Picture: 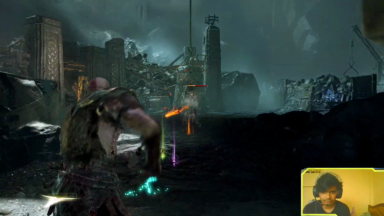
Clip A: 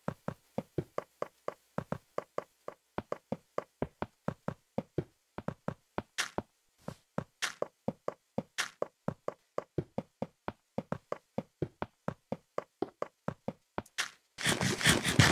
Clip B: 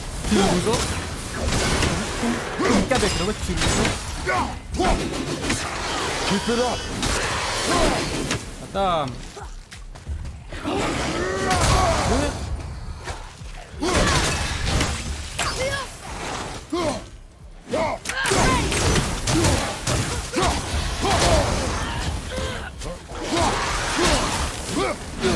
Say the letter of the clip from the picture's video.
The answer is B